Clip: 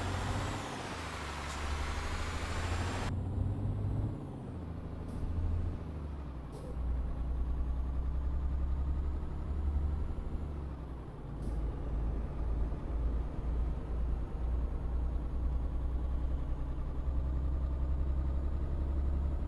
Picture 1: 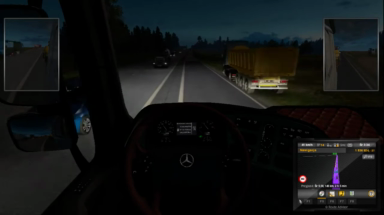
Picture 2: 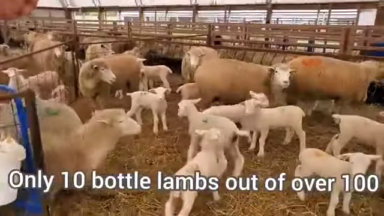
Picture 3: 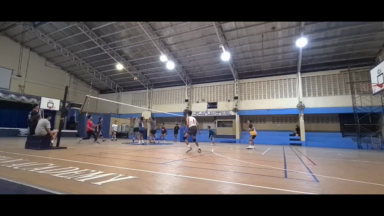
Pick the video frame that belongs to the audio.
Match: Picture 1